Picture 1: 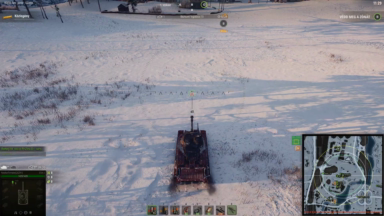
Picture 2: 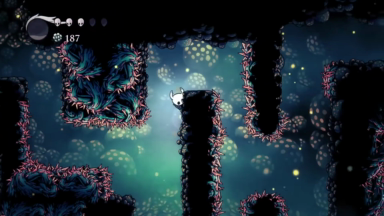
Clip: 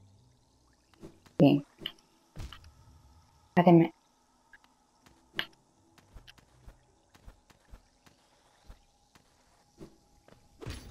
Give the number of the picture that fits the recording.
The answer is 2